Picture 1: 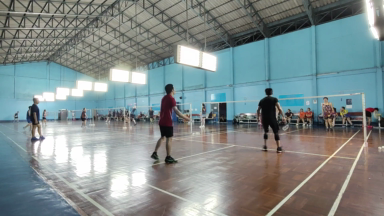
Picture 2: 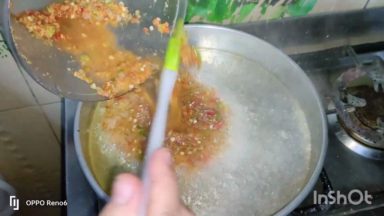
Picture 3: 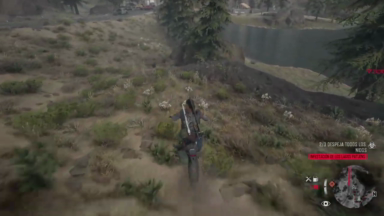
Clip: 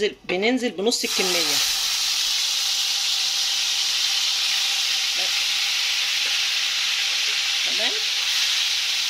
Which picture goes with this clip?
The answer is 2